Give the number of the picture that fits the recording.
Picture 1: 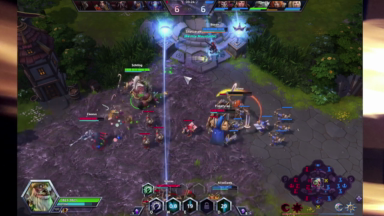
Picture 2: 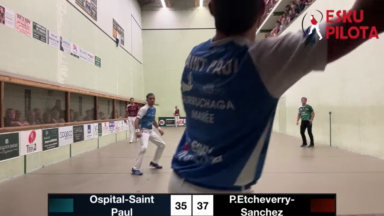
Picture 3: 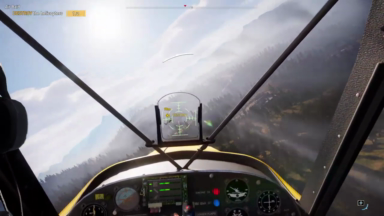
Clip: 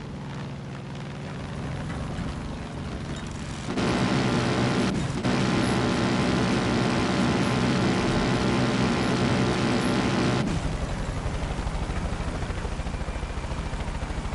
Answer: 3